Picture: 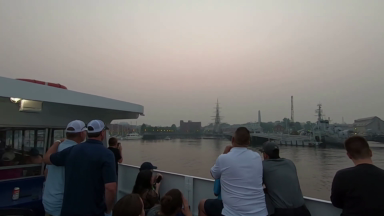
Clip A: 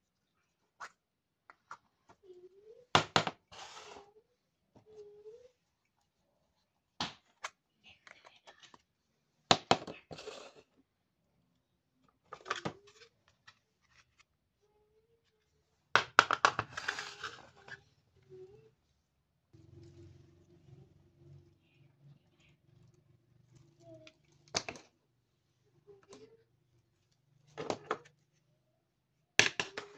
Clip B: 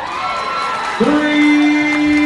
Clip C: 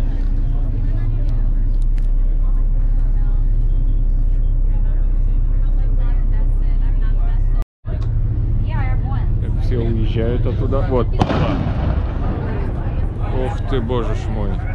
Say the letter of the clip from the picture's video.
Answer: C